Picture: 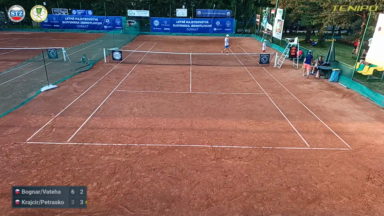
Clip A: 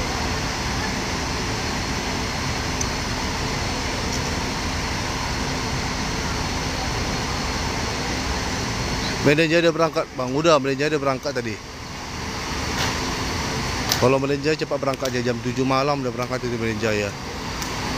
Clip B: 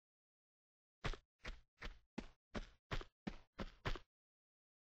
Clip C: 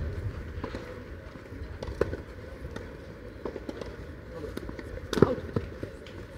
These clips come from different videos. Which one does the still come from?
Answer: C